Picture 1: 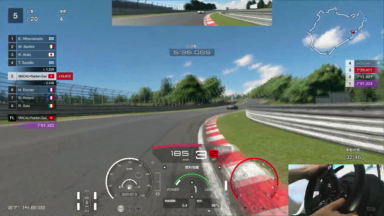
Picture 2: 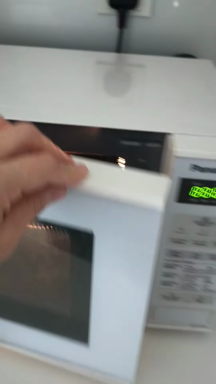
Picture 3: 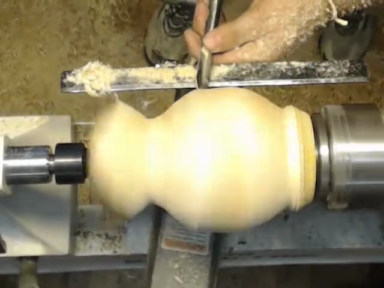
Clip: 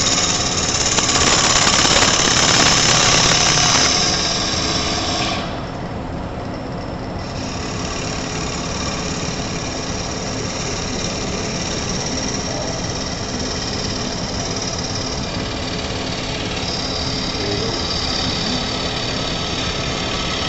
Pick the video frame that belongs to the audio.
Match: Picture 3